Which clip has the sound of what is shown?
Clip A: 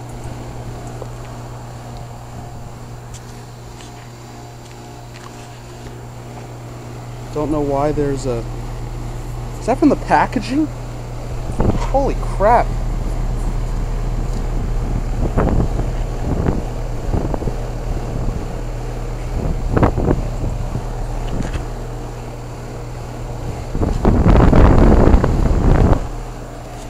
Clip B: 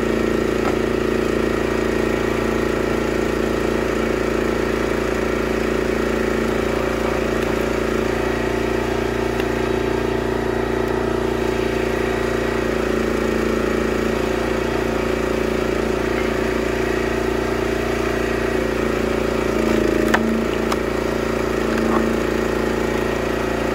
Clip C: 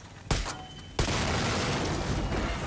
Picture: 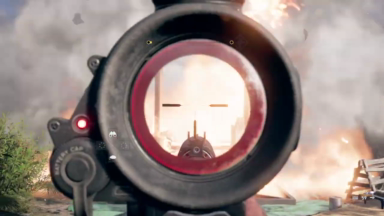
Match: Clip C